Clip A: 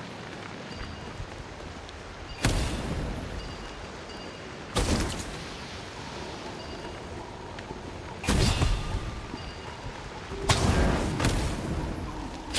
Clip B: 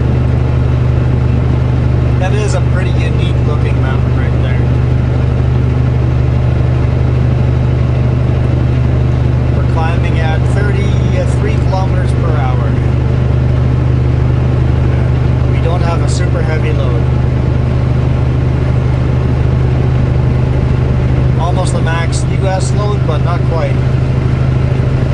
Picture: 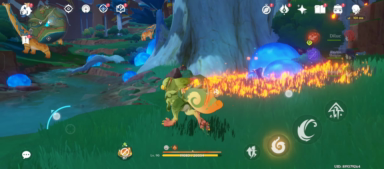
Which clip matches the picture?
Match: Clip A